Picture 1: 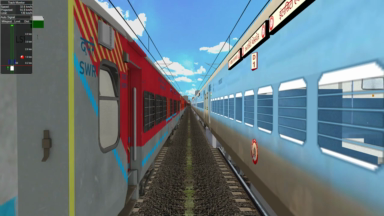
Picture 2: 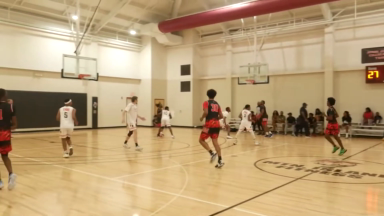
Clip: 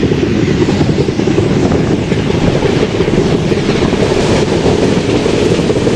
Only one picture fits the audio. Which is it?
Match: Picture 1